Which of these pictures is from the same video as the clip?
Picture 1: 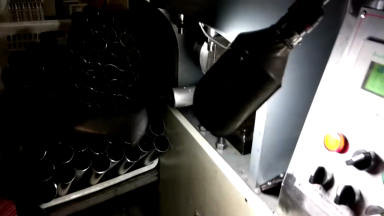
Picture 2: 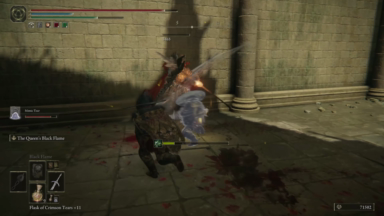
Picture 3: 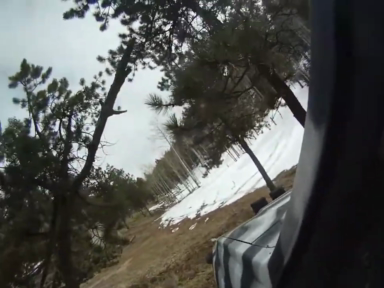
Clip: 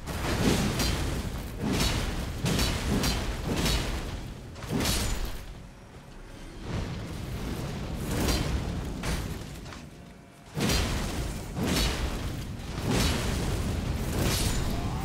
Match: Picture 2